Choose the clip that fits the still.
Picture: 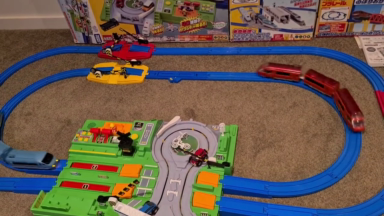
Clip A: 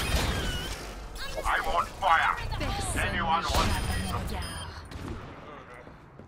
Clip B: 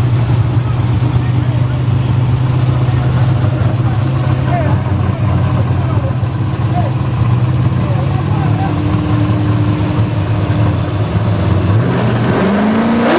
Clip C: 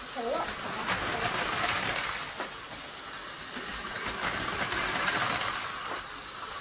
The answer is C